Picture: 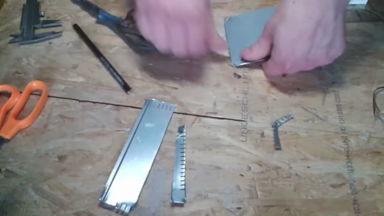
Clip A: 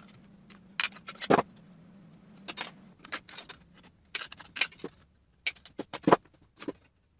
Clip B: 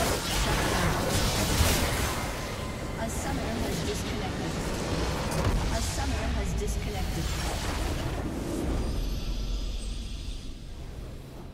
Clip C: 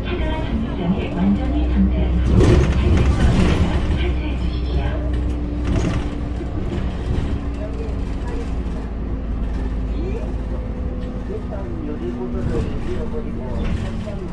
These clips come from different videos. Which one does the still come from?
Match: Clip A